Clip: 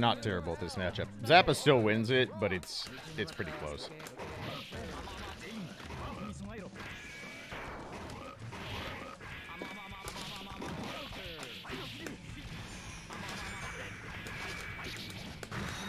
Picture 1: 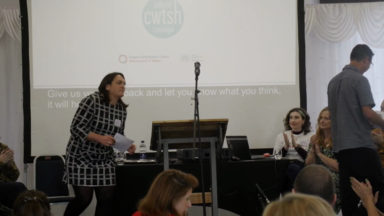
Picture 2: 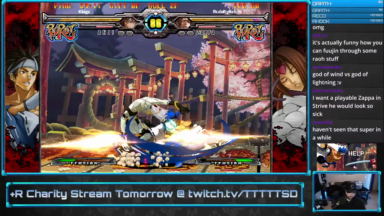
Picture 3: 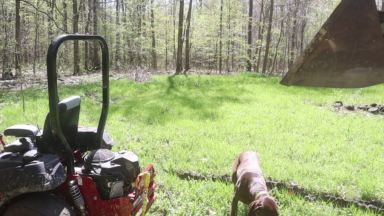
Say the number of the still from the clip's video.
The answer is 2